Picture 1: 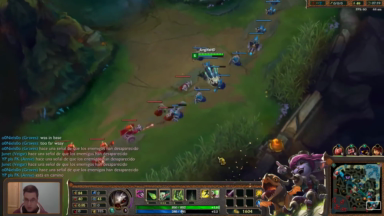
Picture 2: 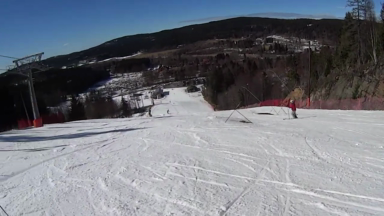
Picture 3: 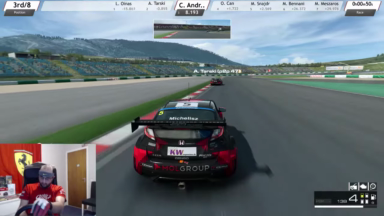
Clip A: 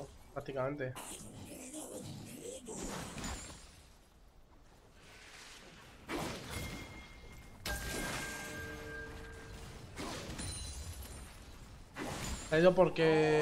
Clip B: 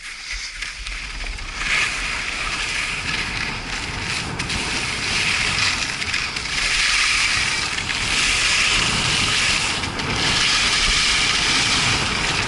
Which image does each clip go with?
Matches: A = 1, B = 2